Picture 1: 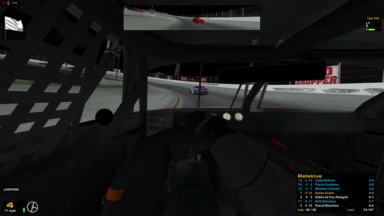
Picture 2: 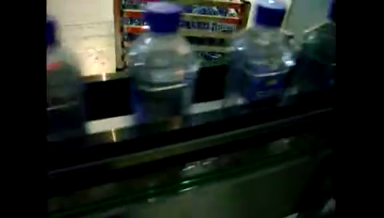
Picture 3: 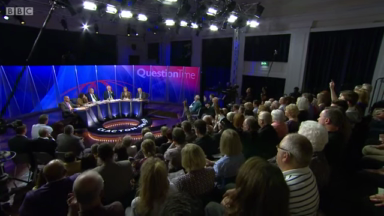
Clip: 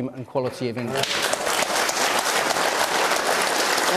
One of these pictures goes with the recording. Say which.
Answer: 3